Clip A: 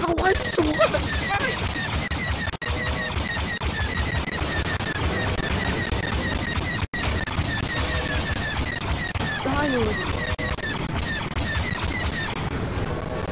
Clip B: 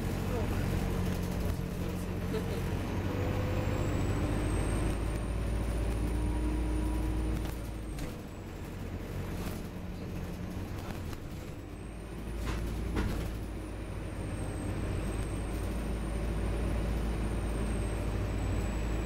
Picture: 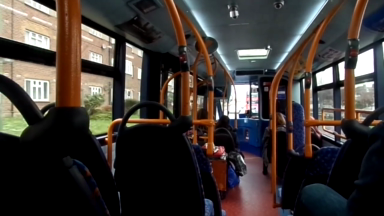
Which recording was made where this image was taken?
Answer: B